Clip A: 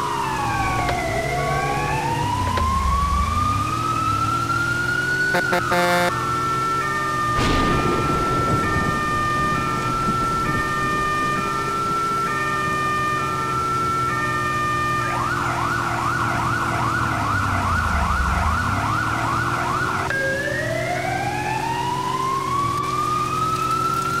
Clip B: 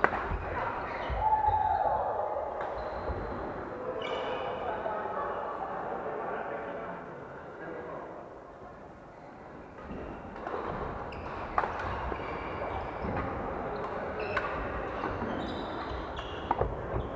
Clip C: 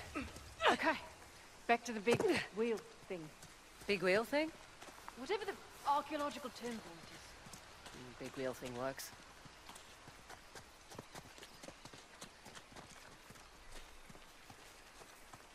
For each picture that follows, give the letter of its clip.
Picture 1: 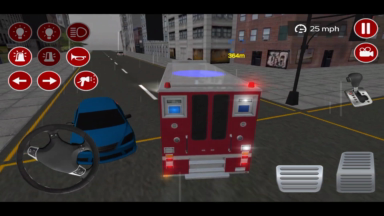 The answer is A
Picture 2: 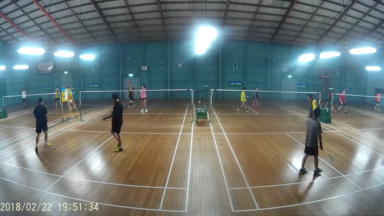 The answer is B